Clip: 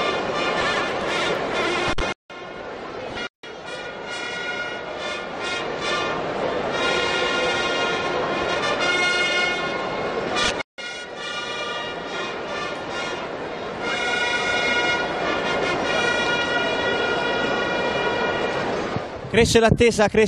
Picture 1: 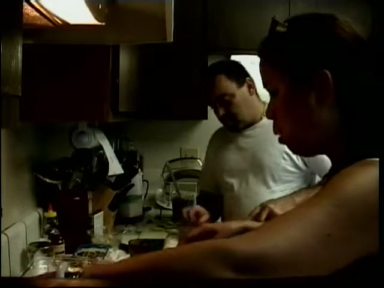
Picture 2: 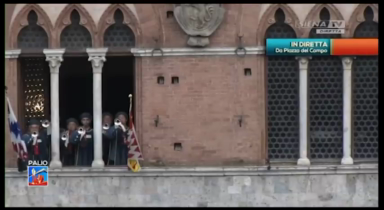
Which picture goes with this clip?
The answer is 2